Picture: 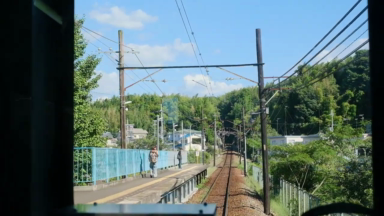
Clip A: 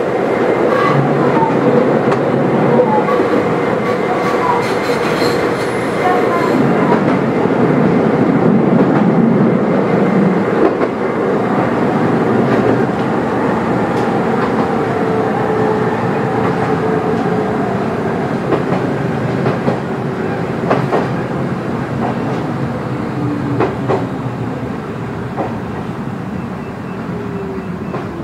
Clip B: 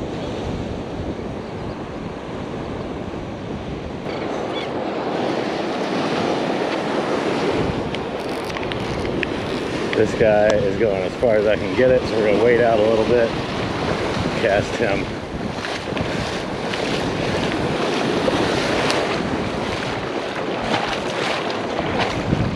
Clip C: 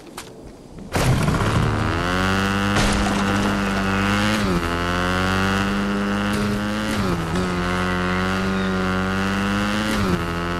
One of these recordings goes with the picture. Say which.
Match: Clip A